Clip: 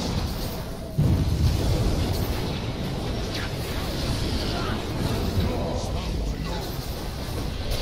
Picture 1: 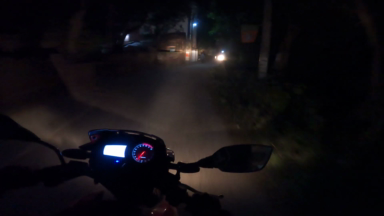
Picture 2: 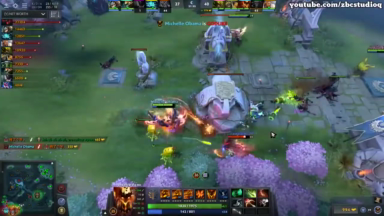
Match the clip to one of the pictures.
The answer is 2